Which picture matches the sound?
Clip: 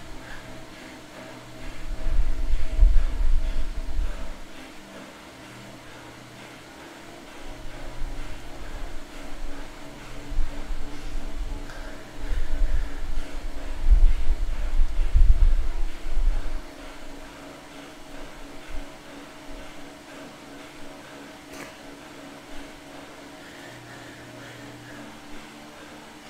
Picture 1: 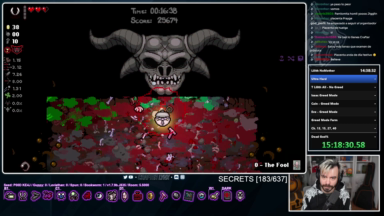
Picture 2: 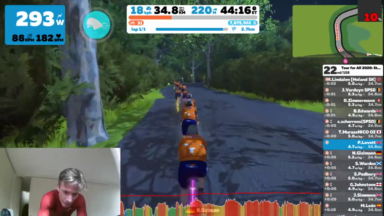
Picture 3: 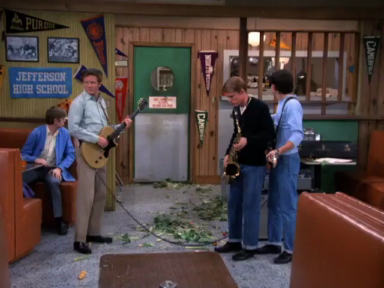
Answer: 2